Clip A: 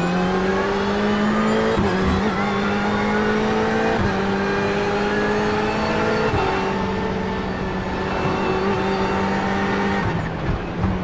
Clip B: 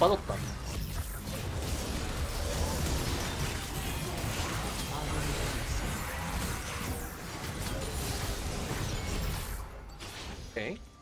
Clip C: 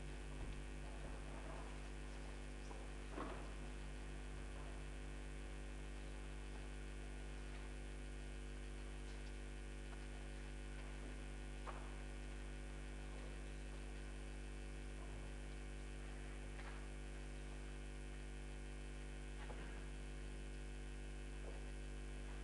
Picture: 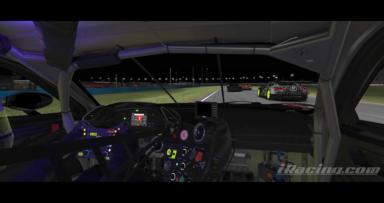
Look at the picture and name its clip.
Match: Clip A